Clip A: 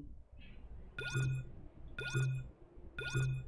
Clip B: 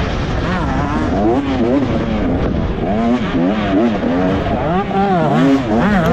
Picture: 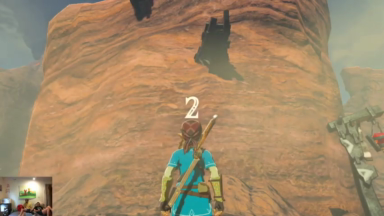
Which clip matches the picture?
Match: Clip A